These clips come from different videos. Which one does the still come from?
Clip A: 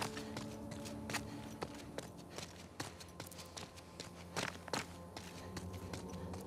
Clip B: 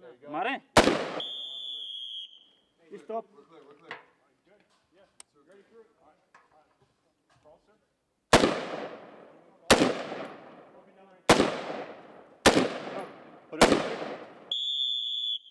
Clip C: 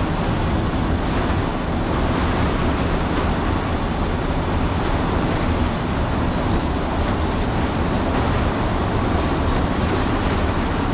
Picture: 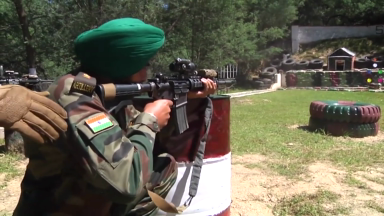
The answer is B